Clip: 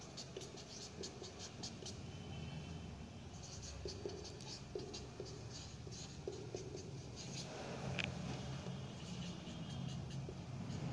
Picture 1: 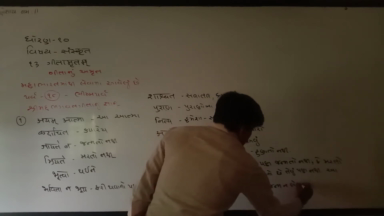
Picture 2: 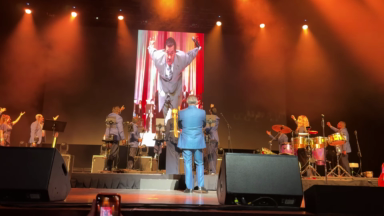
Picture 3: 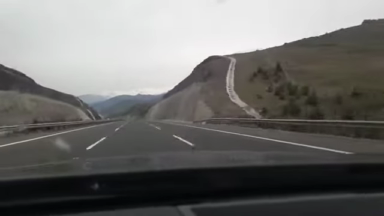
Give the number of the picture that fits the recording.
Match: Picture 1